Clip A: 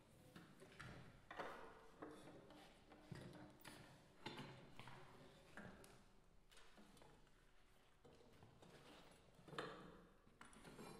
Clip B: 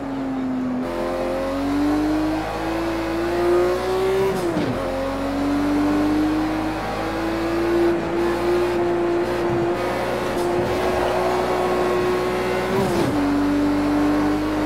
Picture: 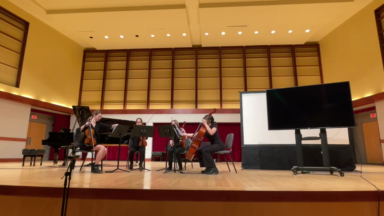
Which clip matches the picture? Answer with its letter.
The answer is A